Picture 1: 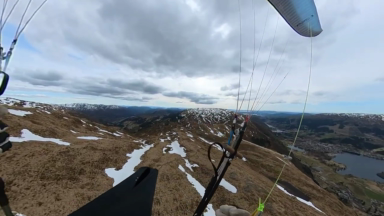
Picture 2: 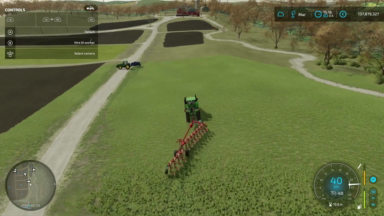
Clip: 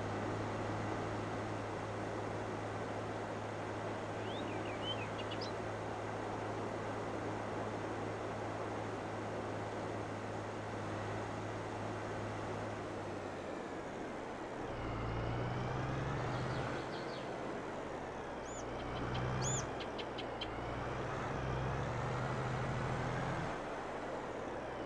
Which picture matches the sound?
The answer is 2